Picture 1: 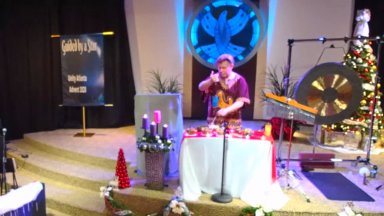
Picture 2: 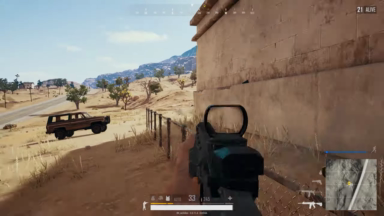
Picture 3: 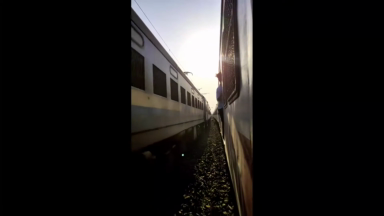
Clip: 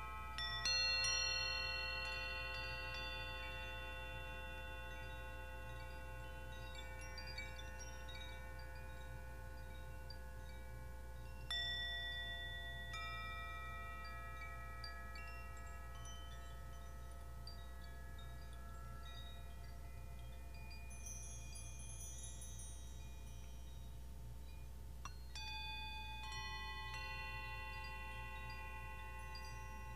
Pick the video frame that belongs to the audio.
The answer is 1